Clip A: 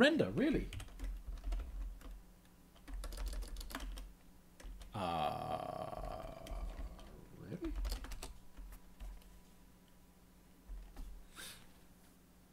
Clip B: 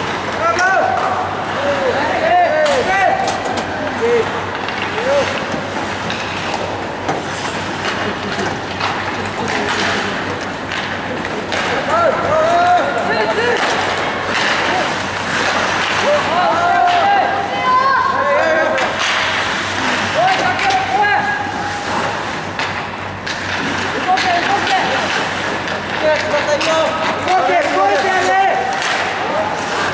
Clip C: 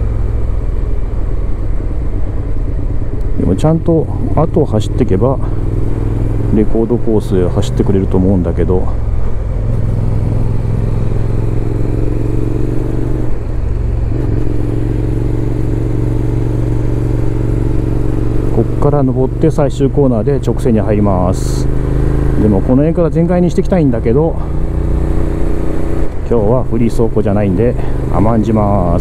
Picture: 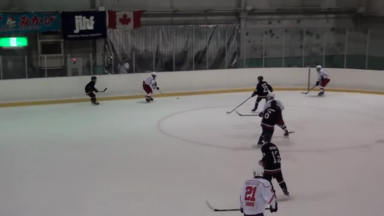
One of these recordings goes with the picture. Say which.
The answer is B